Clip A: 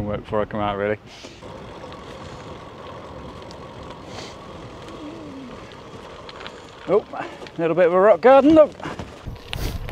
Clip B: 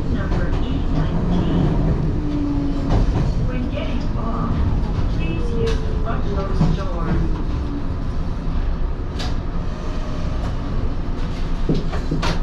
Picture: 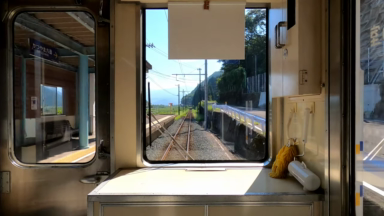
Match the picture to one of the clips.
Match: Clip B